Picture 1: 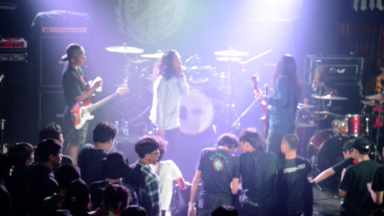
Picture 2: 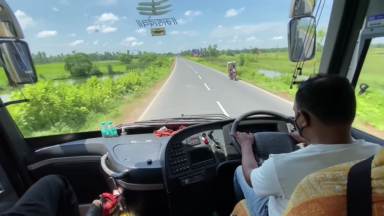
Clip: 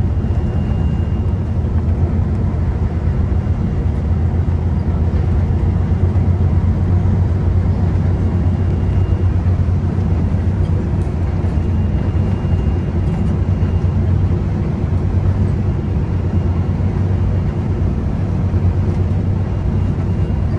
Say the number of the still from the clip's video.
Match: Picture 2